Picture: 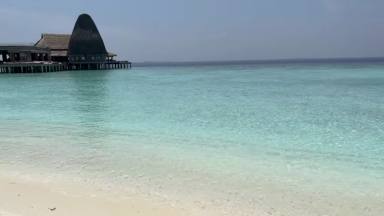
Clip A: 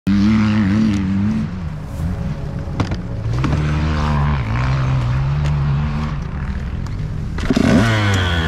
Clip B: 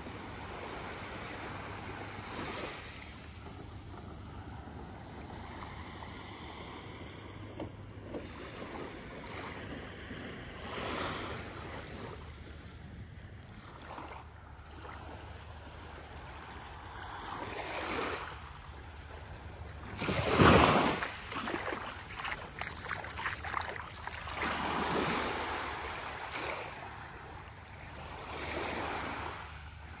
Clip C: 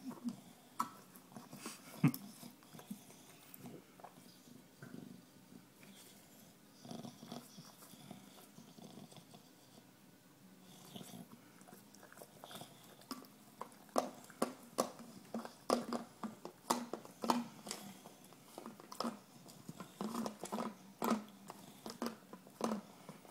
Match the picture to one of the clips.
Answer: B